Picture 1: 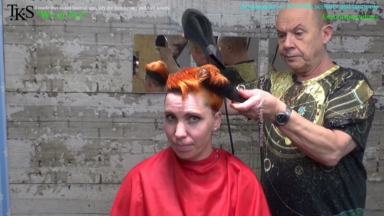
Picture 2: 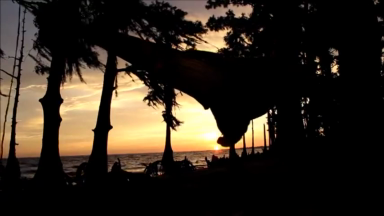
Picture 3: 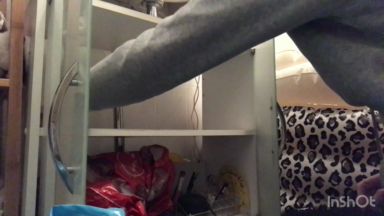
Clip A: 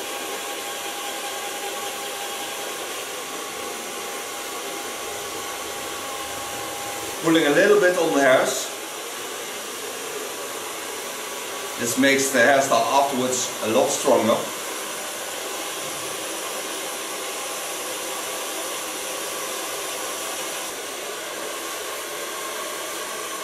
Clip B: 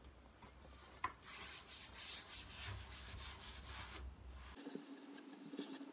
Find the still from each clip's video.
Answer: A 1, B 3